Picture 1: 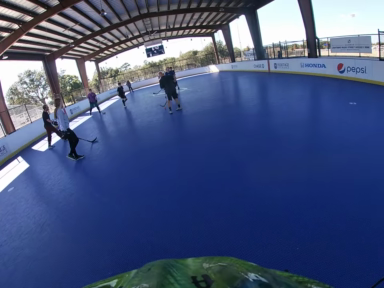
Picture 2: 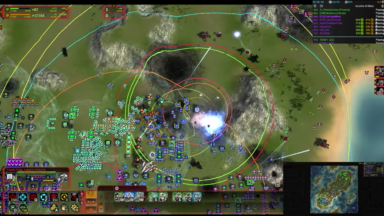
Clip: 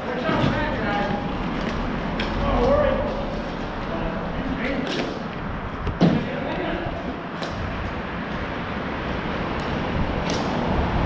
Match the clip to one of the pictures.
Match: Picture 1